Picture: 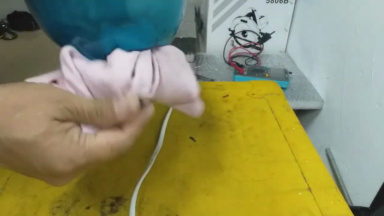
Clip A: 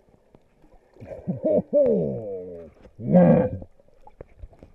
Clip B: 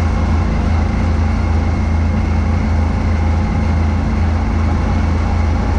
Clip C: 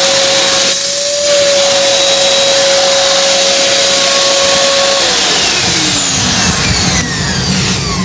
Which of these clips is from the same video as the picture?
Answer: C